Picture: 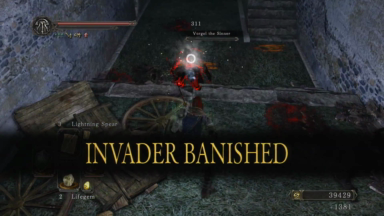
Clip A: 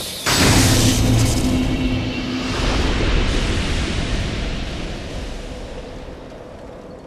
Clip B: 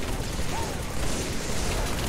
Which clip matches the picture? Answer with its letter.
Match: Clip A